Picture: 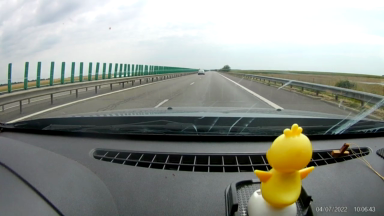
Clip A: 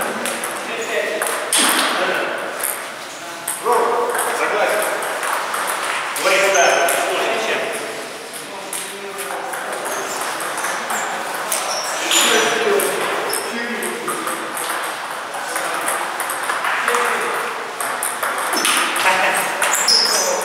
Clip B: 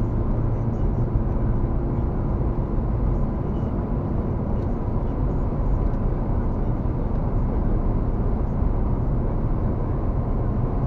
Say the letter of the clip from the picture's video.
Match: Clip B